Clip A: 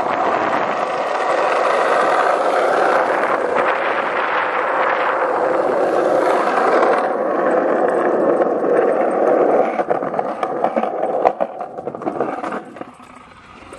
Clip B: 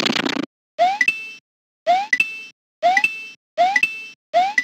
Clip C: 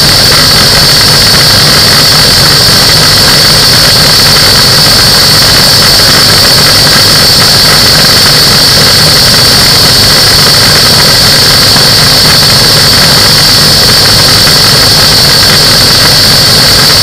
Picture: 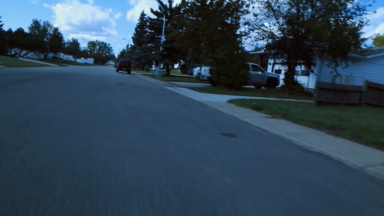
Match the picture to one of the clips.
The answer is A